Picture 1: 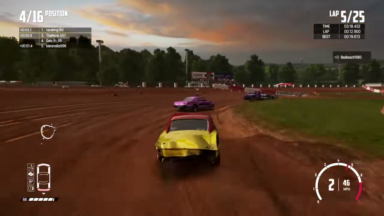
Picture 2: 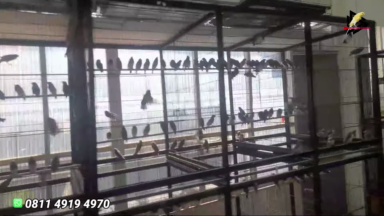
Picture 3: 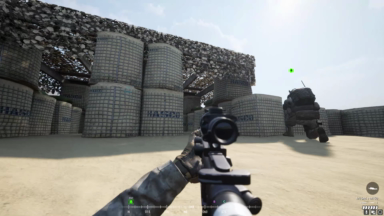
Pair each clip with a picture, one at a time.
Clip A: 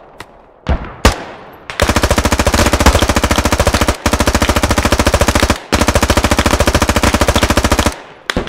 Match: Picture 3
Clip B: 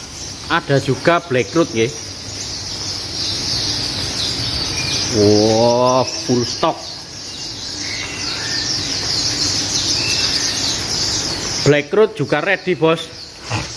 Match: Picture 2